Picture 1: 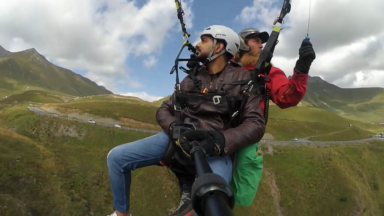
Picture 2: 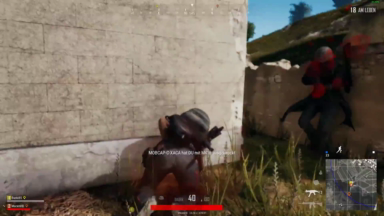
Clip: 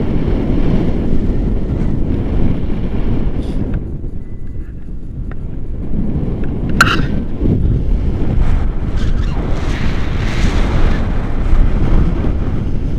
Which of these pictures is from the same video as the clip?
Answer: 1